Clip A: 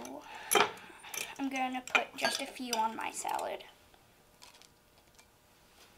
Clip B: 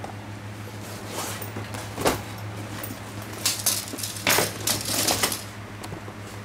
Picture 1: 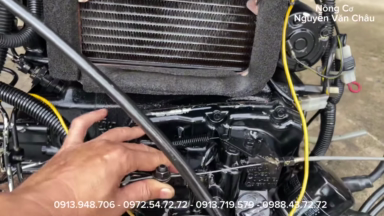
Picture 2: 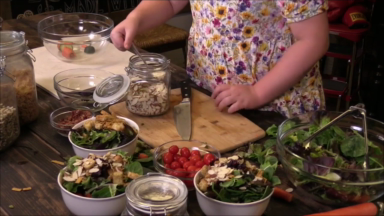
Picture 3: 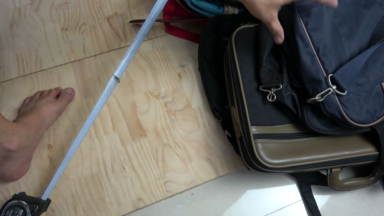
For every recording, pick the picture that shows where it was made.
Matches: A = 2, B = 3